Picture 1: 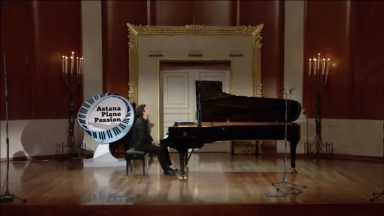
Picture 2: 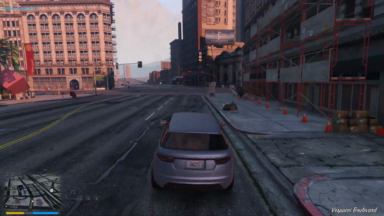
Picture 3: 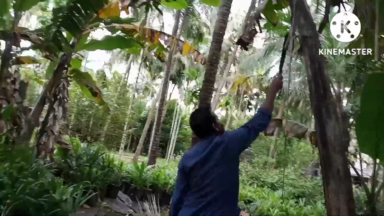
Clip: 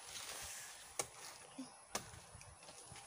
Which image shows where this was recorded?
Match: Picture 3